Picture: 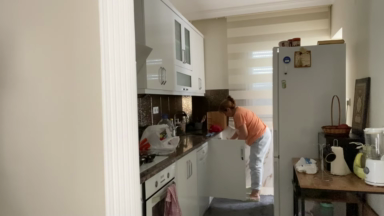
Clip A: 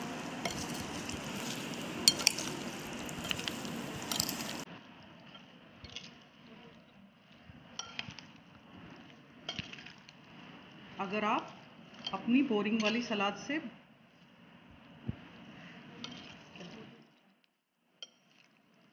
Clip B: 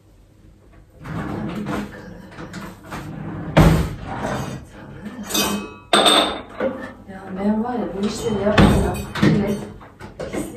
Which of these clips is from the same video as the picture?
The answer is B